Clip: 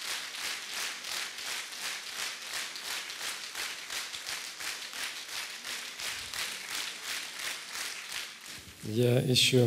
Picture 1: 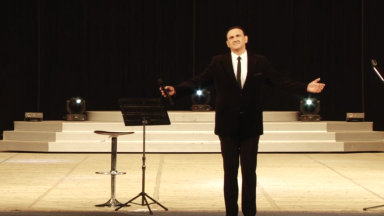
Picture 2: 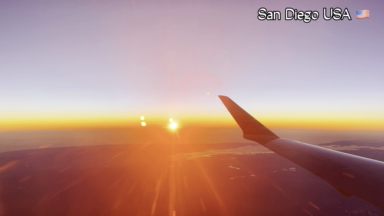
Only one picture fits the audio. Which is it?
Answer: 1